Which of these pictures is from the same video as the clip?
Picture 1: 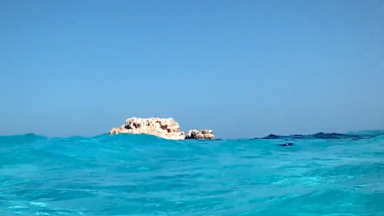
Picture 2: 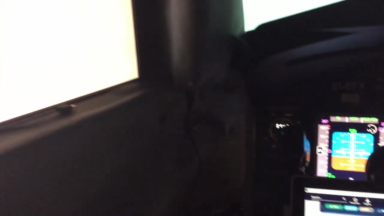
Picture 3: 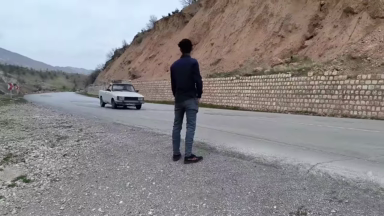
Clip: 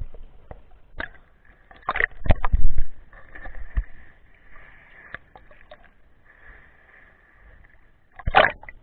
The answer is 1